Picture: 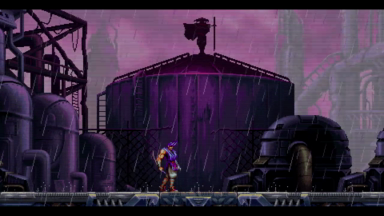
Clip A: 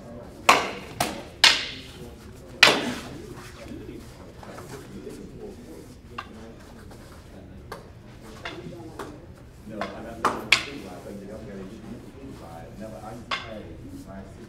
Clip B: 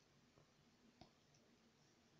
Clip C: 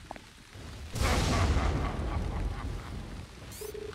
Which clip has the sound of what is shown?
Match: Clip C